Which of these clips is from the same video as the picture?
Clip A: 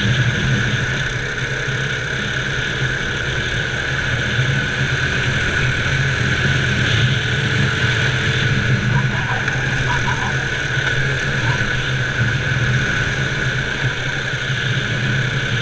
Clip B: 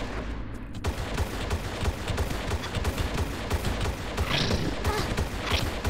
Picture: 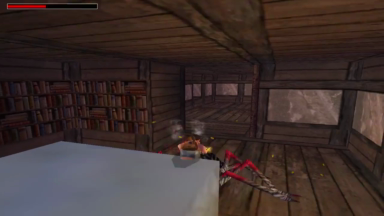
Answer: B